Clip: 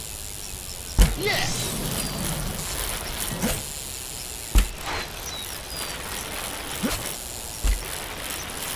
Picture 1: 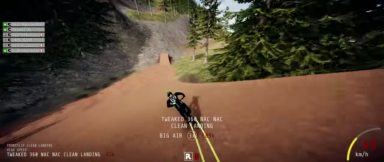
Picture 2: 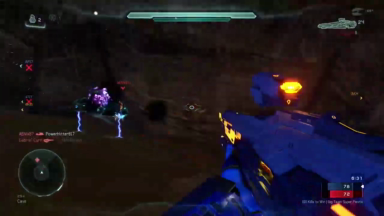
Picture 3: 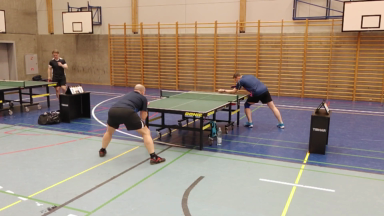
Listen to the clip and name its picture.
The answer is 1